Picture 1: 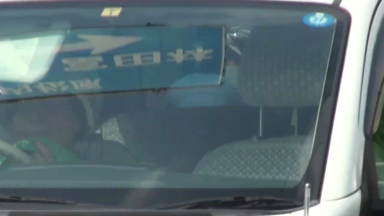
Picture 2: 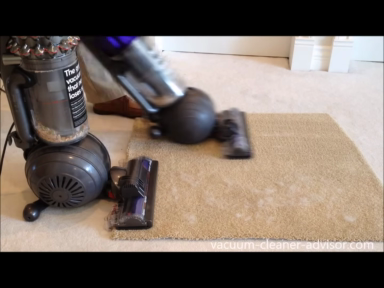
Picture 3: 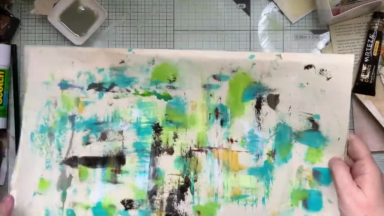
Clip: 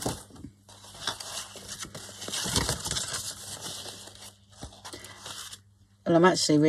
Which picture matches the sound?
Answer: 3